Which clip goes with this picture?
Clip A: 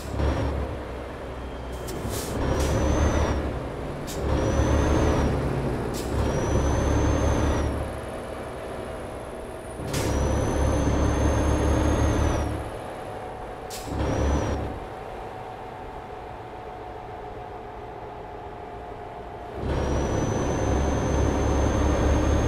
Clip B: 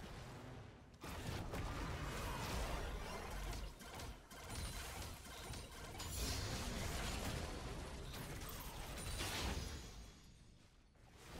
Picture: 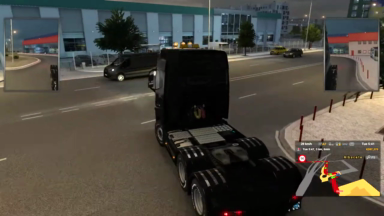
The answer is A